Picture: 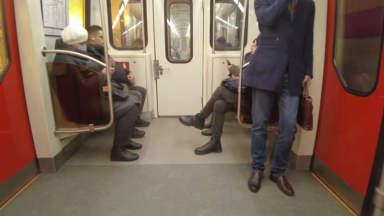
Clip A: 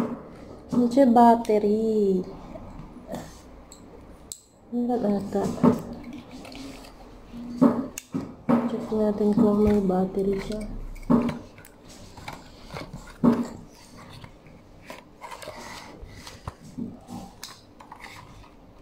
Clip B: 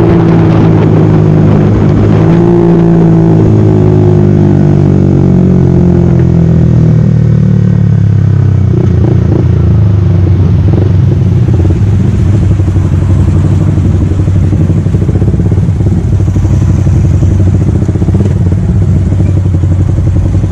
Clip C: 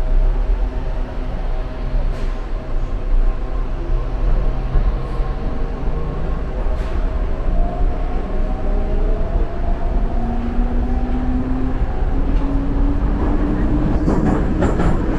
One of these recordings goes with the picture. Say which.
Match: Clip C